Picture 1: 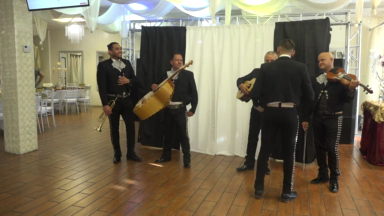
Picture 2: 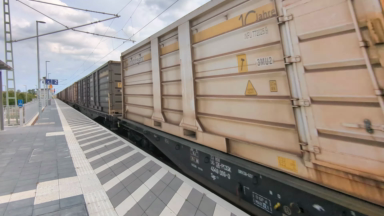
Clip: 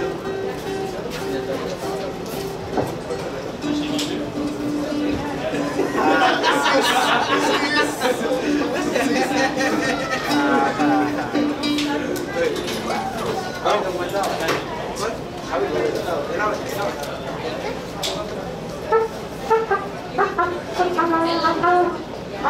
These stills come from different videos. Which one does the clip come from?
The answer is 1